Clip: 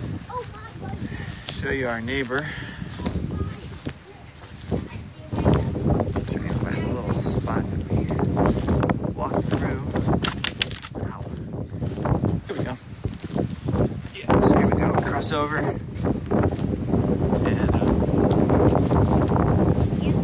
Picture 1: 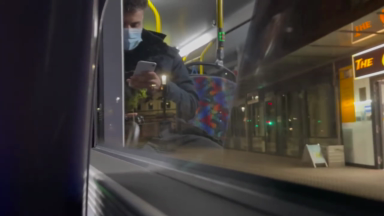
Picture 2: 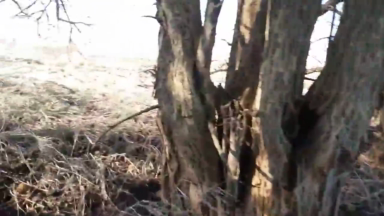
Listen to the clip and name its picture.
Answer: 2